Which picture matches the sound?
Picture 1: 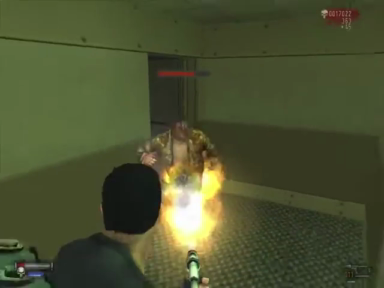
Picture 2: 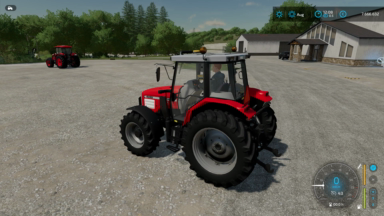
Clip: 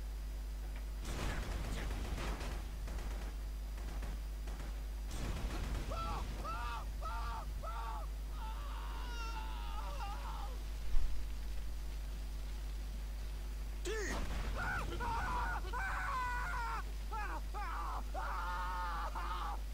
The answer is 1